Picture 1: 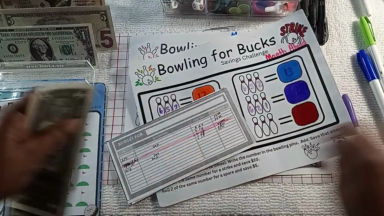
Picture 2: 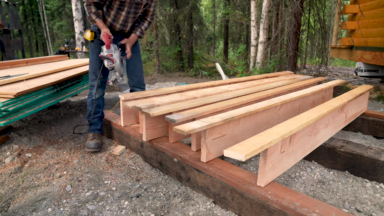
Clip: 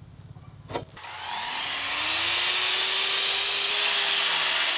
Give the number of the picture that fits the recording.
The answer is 2